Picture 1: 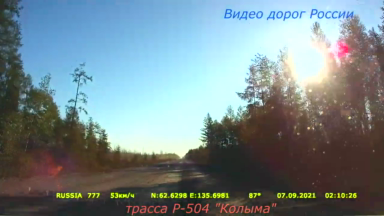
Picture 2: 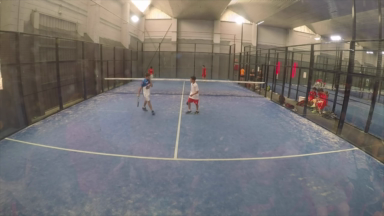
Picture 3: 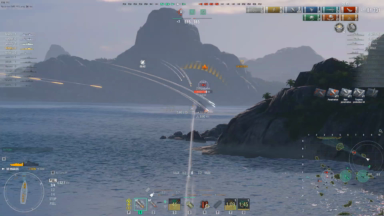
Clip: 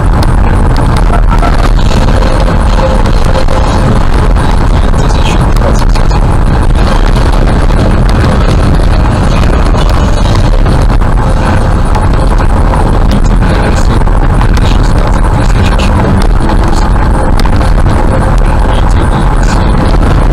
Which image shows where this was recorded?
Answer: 1